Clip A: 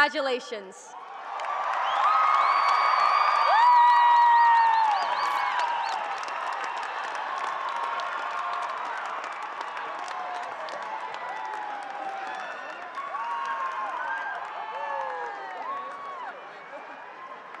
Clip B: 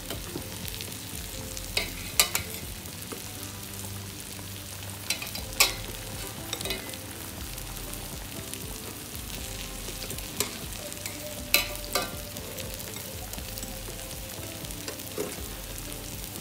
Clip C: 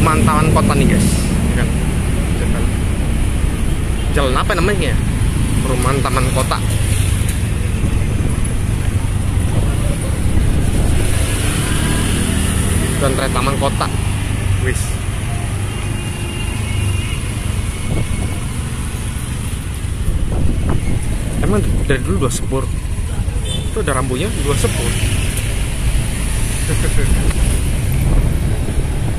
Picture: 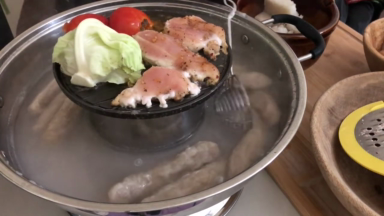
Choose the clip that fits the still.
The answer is B